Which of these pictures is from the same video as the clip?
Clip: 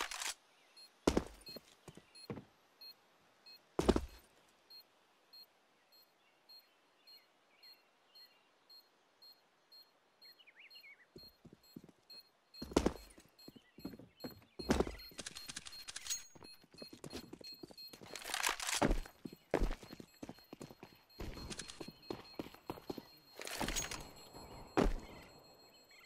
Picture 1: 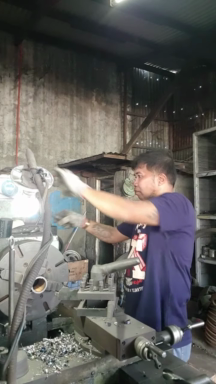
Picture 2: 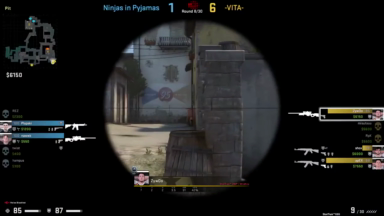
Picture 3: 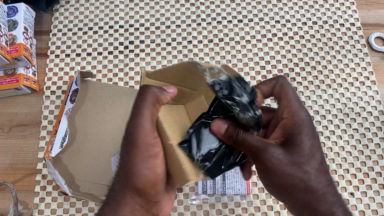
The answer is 2